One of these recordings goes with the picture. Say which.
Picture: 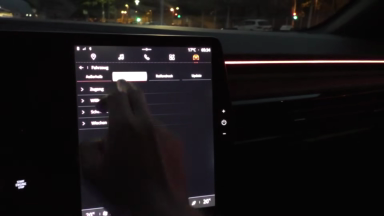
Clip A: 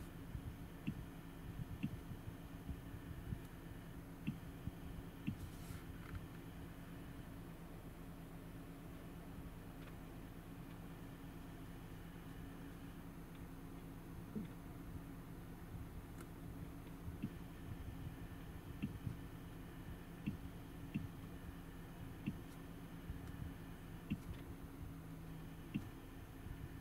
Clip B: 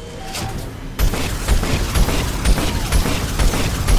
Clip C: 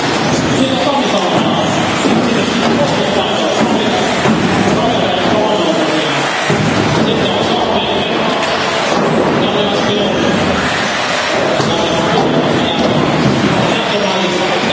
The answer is A